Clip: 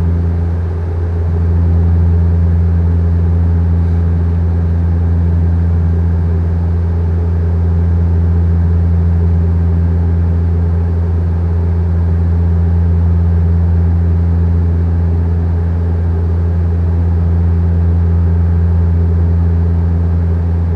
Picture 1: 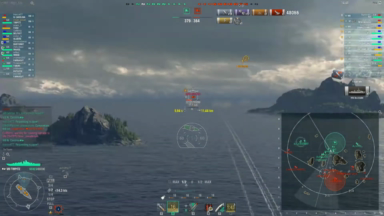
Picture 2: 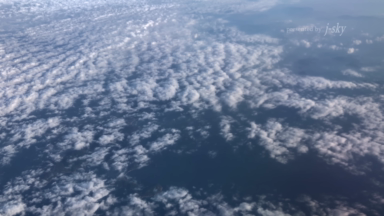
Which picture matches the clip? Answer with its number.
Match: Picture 2